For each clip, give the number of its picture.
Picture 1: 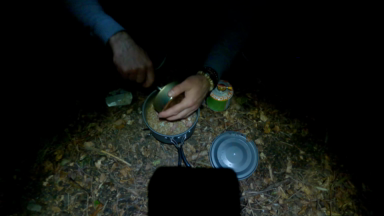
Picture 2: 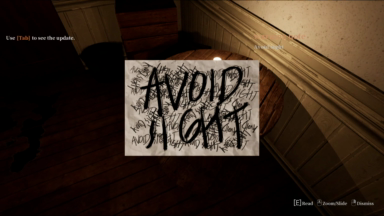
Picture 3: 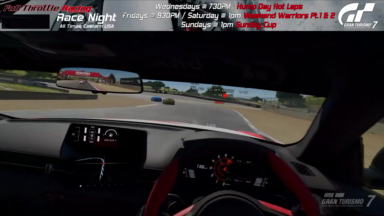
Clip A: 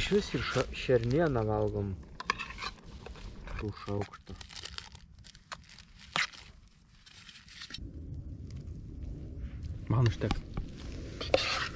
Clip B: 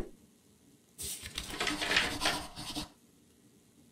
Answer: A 1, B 2